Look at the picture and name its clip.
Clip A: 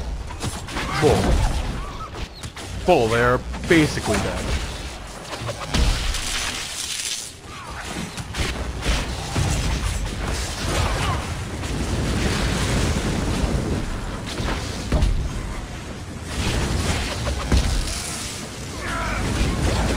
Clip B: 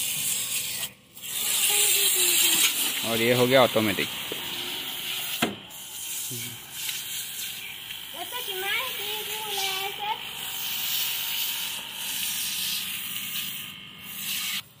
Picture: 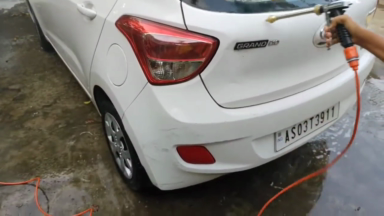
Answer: B